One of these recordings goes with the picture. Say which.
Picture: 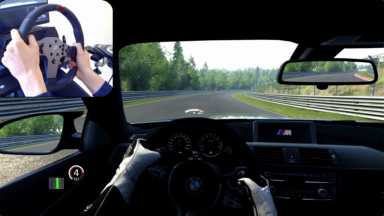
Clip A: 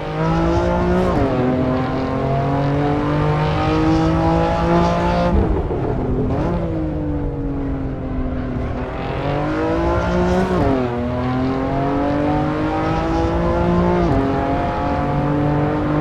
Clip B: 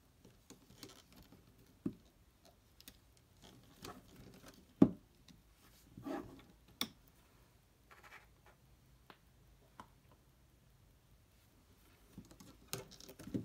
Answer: A